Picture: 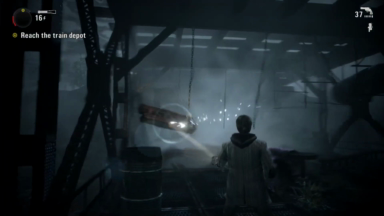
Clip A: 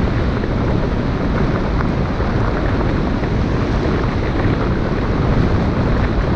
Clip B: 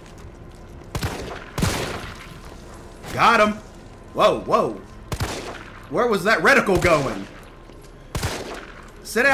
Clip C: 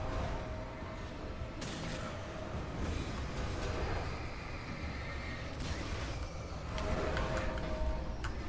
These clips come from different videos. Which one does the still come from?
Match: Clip C